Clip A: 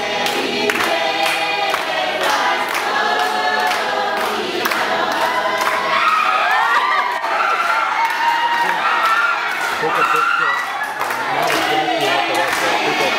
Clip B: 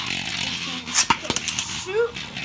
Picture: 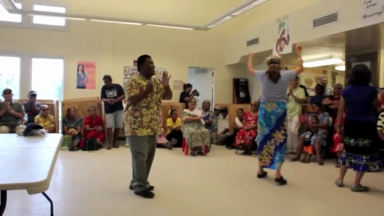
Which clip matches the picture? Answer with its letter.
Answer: A